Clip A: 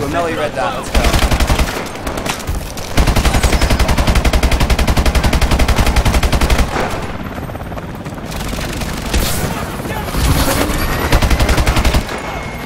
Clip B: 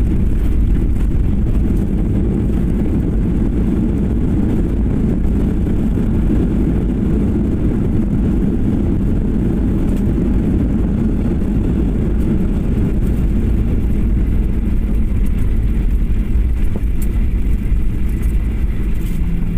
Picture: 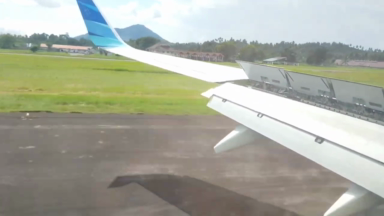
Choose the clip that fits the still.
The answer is B